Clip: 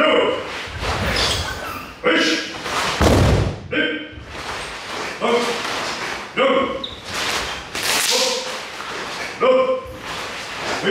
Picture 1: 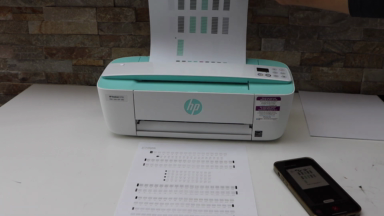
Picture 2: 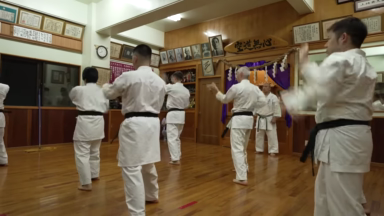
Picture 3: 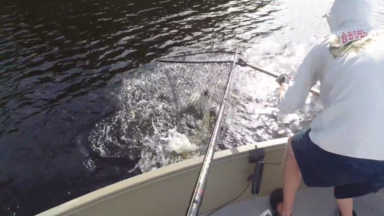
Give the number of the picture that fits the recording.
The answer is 2